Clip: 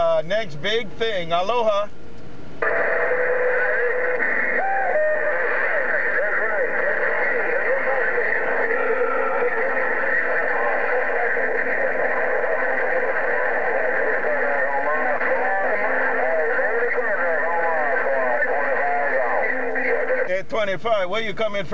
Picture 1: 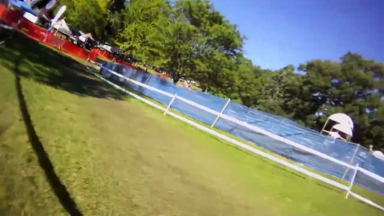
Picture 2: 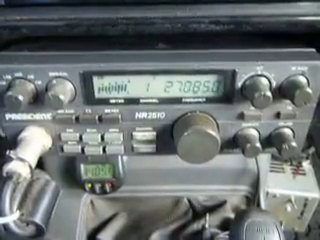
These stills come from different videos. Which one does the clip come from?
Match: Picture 2